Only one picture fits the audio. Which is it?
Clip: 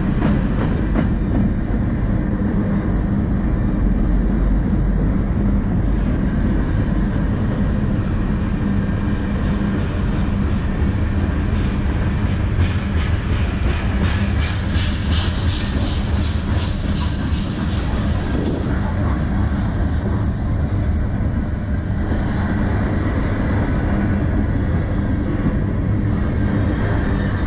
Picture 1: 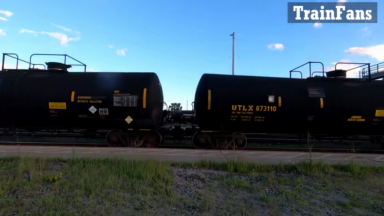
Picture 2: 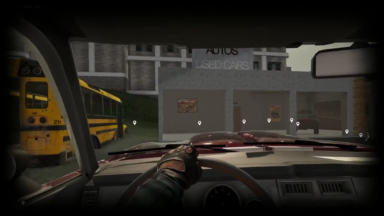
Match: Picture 1